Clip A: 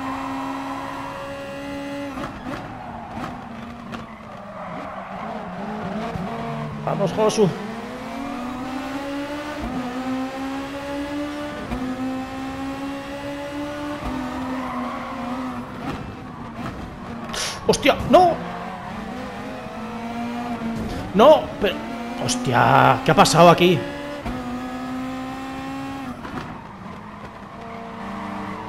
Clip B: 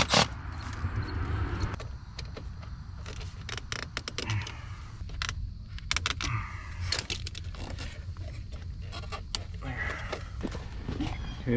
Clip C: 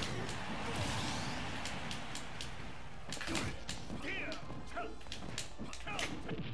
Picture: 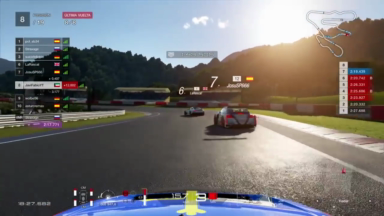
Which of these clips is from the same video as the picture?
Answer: A